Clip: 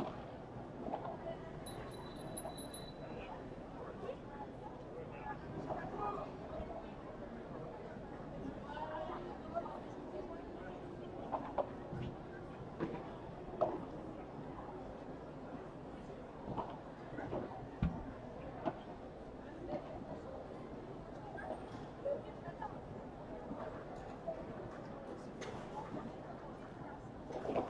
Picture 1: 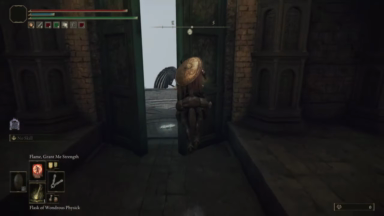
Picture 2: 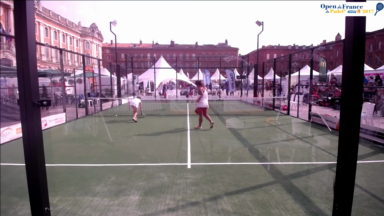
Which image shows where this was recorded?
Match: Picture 2